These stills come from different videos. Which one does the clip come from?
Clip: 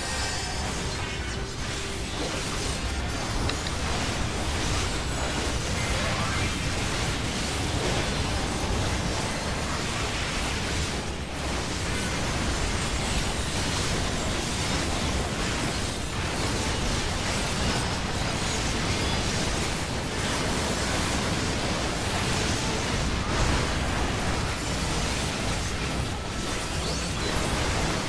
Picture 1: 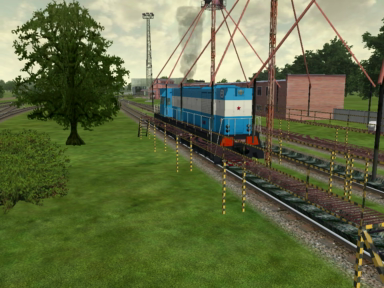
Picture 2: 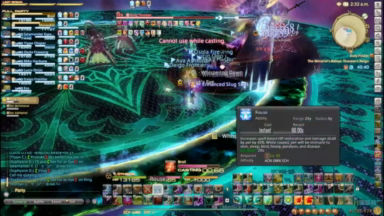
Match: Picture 2